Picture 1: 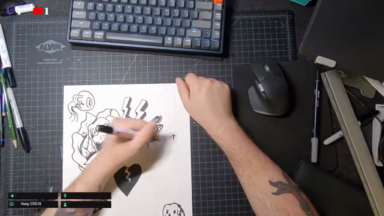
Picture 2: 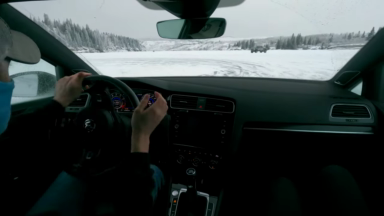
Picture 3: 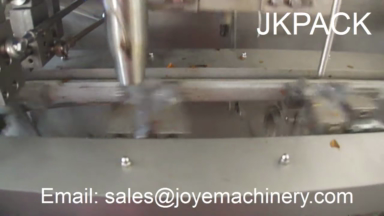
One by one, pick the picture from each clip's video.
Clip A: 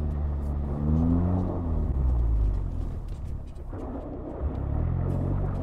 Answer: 2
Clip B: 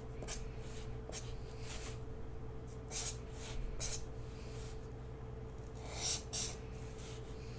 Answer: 1